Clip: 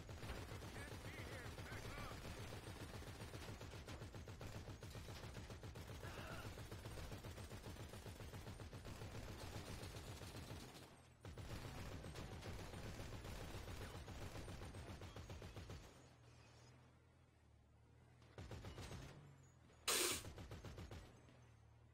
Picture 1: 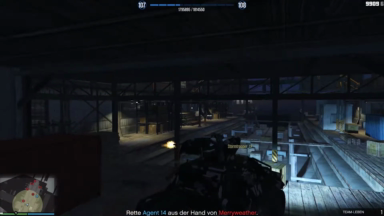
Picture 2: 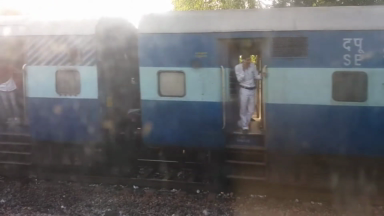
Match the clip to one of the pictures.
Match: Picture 1